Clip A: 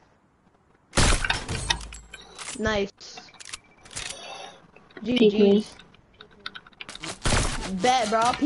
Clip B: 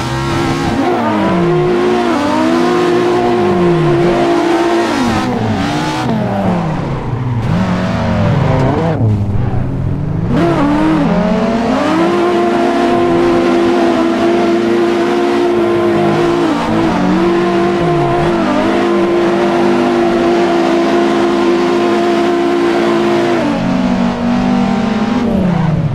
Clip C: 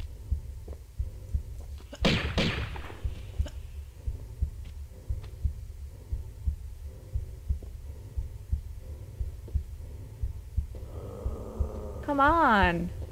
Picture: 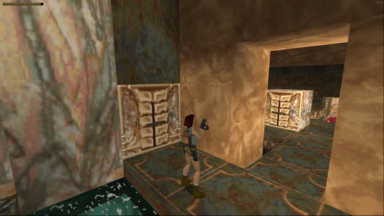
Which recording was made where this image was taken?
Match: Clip C